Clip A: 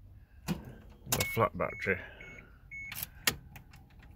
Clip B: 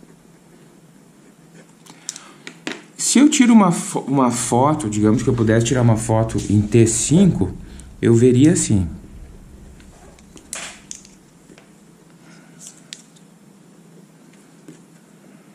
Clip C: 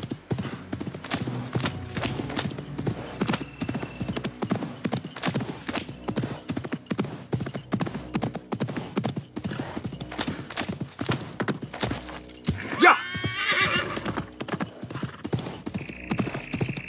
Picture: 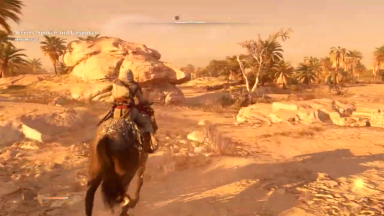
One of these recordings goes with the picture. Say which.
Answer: C